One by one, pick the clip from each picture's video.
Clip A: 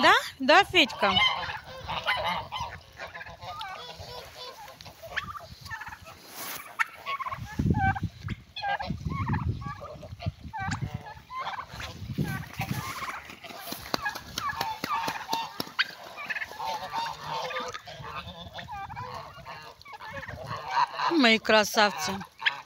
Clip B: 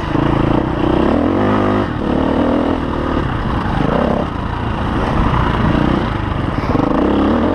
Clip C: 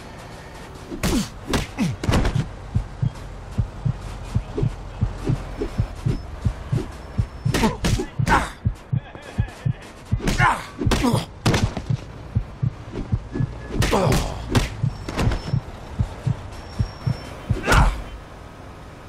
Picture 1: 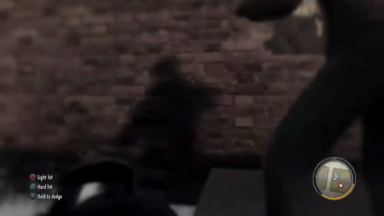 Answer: C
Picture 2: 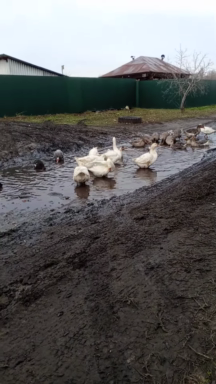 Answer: A